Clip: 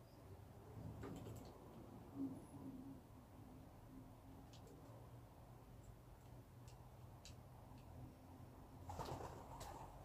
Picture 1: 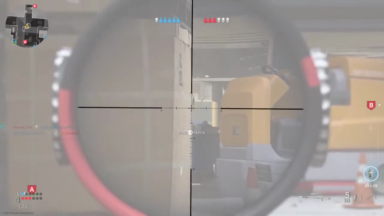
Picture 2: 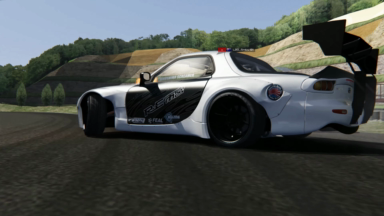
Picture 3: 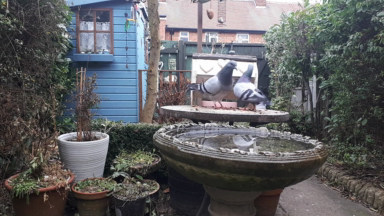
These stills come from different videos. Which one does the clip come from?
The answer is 3